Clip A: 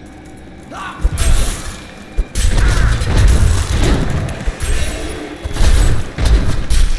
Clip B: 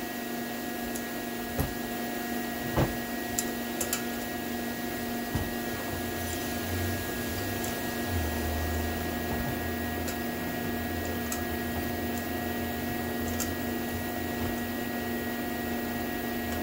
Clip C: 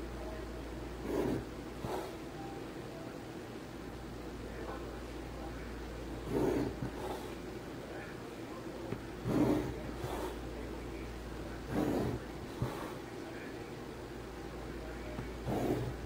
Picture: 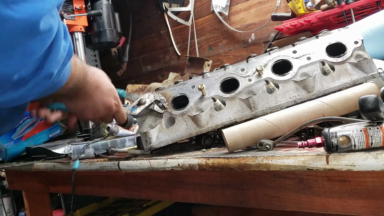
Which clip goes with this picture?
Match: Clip B